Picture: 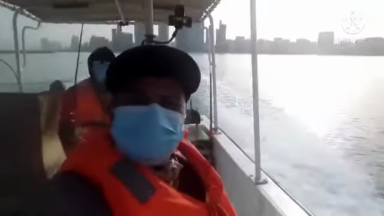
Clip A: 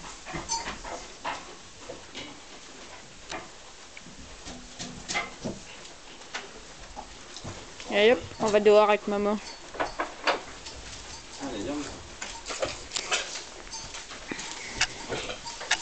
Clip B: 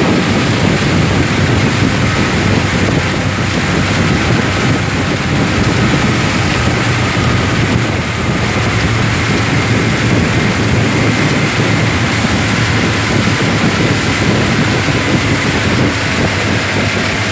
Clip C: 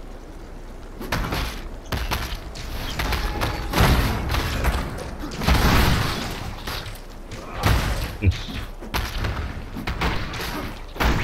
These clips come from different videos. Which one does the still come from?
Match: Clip B